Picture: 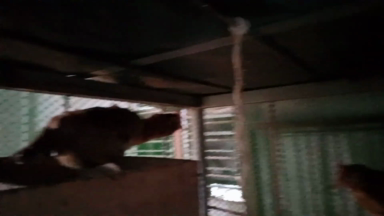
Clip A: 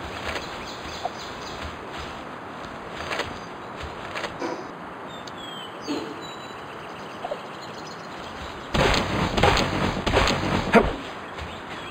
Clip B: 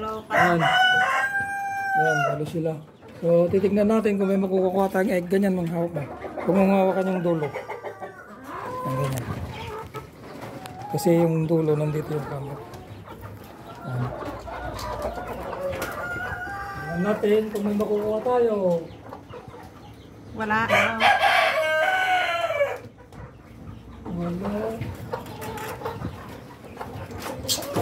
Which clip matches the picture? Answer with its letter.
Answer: B